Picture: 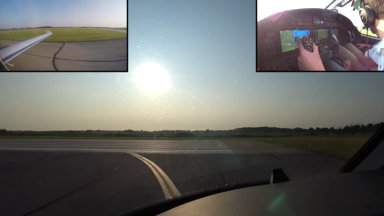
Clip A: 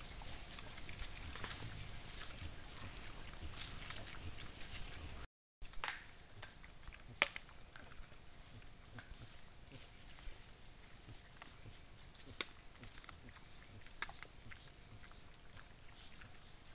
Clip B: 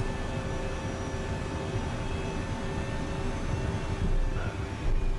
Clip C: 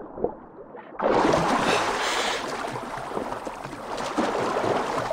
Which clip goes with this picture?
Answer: B